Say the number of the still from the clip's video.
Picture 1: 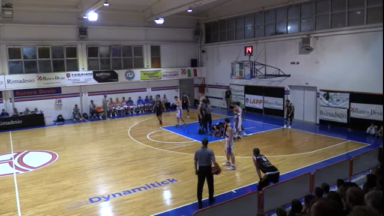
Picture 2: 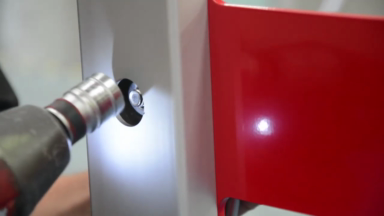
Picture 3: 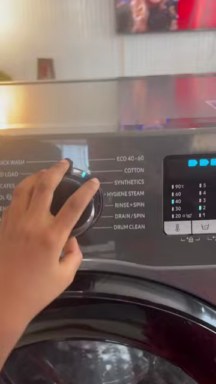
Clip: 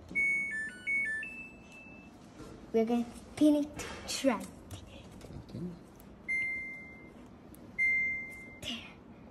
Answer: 3